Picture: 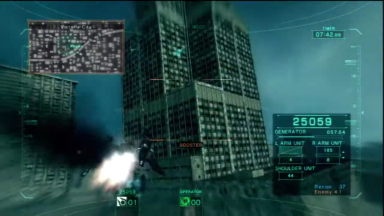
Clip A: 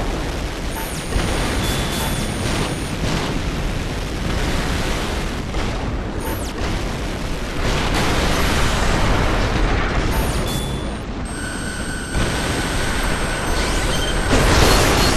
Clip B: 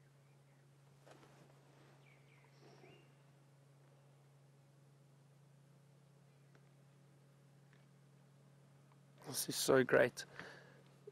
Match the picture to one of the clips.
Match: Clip A